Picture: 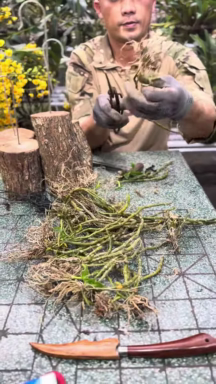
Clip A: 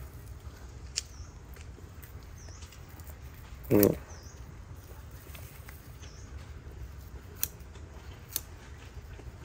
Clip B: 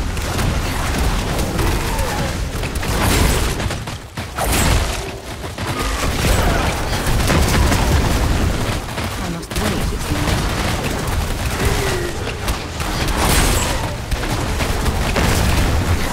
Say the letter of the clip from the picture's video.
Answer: A